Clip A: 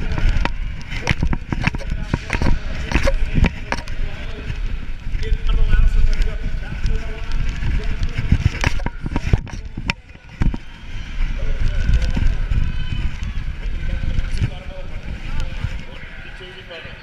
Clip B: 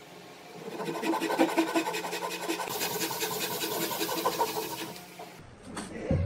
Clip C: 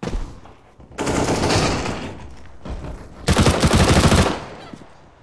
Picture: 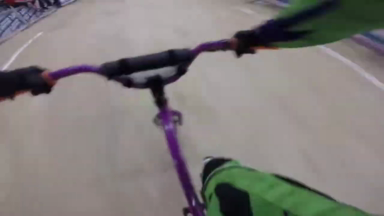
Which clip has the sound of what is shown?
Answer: A